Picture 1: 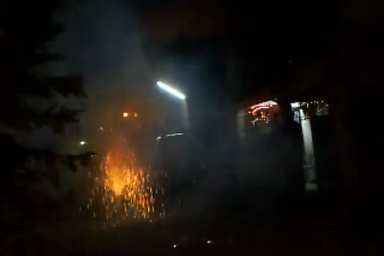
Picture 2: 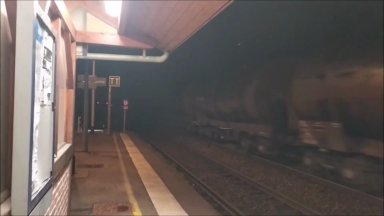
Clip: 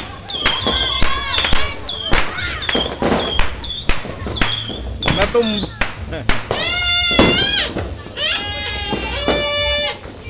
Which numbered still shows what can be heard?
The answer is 1